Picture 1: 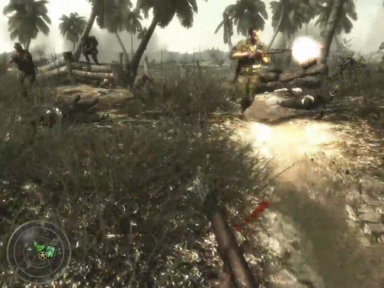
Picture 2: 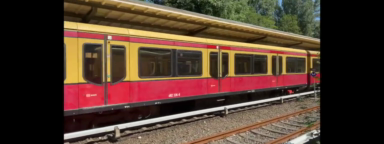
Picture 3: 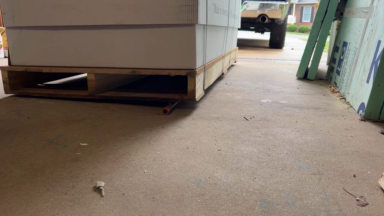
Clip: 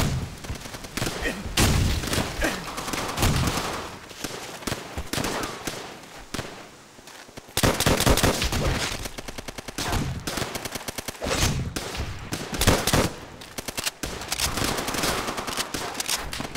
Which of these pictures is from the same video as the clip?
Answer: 1